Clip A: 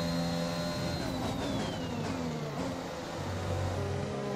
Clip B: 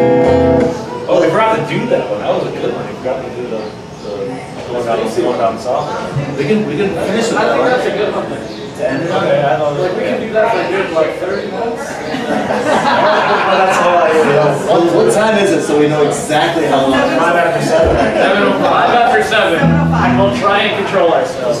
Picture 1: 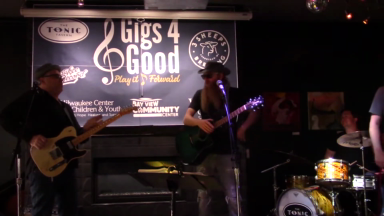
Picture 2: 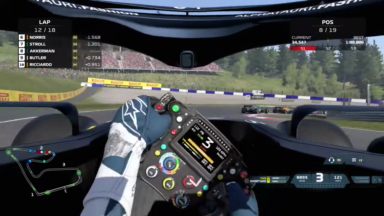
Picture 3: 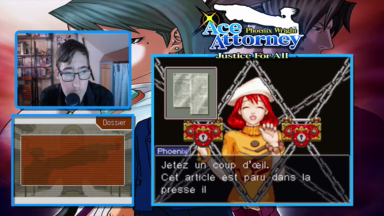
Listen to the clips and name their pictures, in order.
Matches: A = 2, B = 1